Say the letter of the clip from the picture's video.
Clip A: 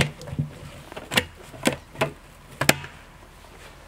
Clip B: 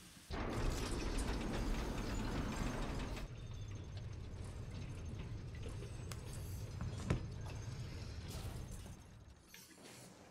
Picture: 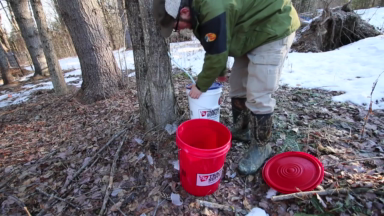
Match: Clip A